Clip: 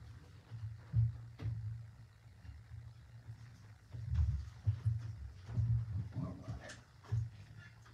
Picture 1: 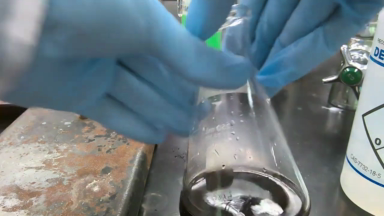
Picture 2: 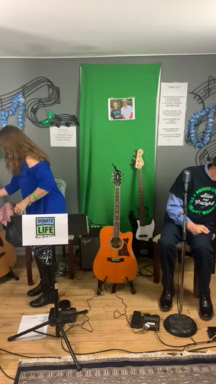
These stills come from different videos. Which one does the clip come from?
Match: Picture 2